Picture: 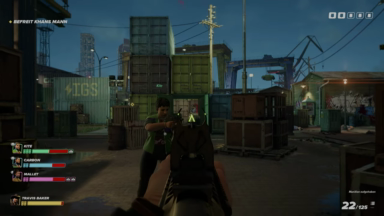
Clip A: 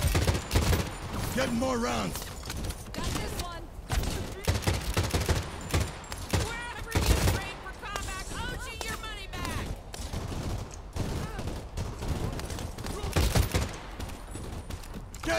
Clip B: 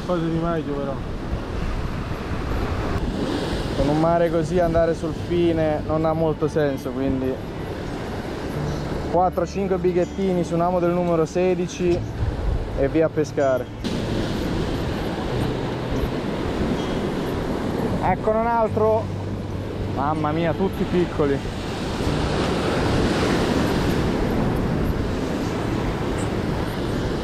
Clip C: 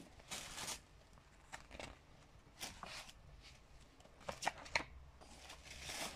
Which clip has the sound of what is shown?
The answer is A